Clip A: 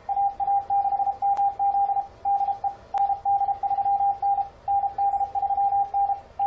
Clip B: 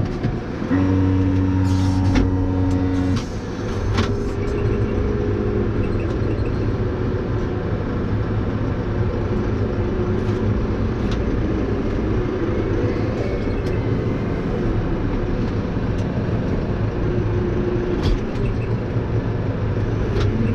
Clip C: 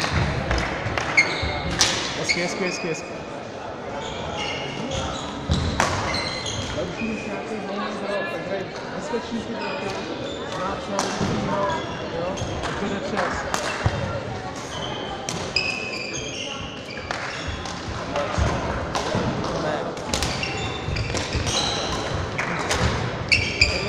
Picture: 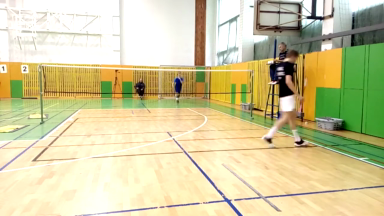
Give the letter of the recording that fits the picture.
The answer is C